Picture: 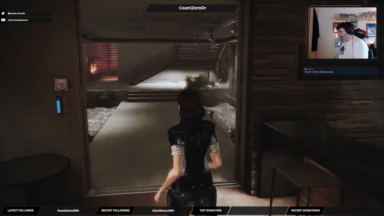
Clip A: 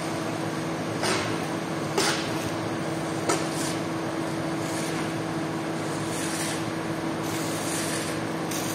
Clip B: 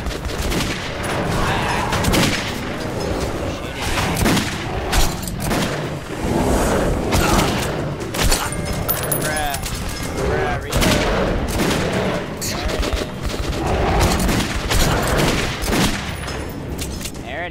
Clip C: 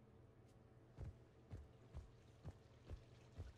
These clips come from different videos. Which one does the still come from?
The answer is C